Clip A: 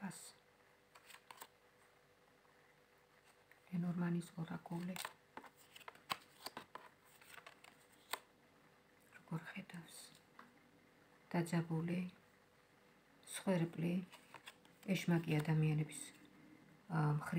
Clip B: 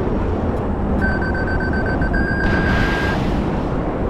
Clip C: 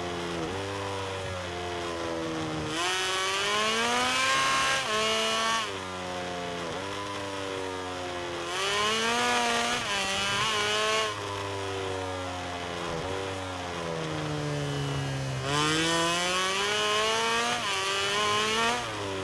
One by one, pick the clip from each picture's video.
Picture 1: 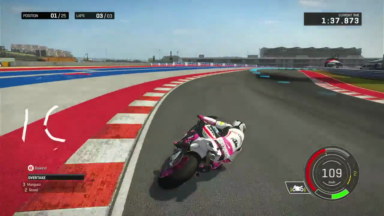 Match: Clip C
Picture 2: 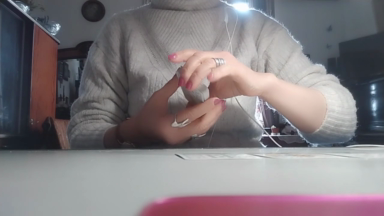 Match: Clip A